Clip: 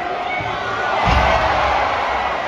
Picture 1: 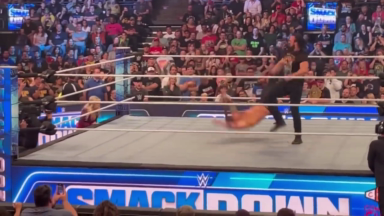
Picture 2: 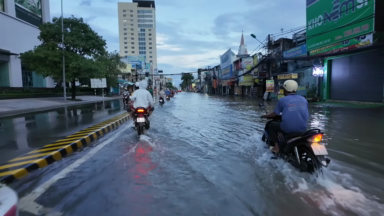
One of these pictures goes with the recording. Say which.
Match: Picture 1